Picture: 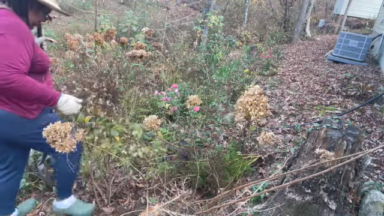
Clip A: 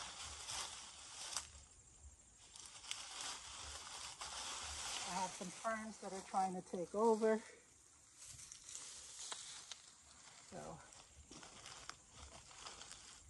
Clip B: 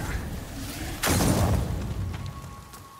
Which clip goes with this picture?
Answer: A